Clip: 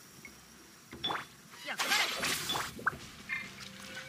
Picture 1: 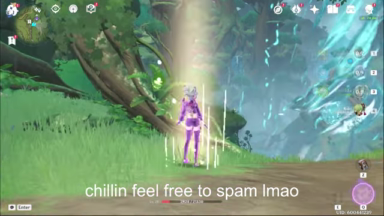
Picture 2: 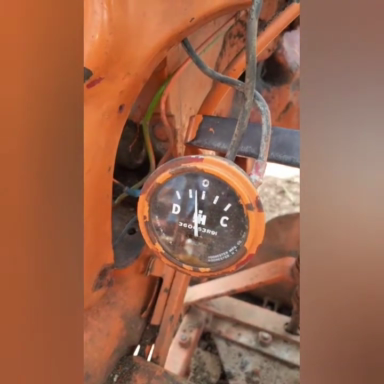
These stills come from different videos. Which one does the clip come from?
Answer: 1